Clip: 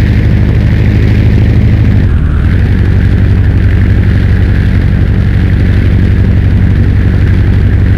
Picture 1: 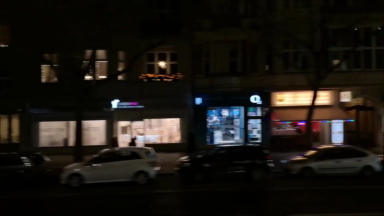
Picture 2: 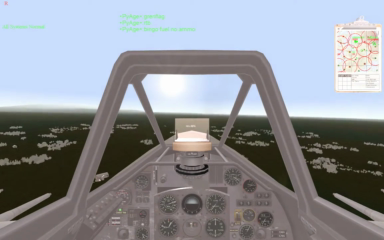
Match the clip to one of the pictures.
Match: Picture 2